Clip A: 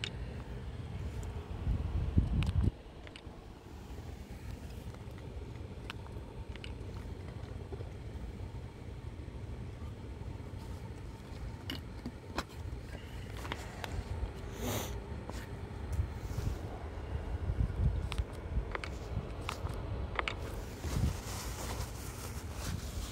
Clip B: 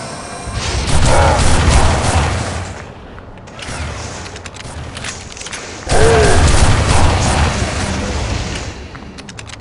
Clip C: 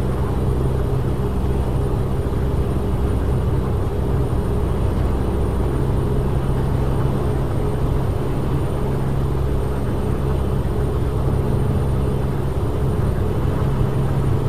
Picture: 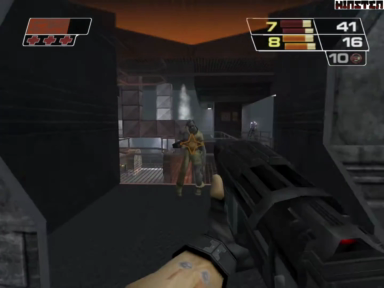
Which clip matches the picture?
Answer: B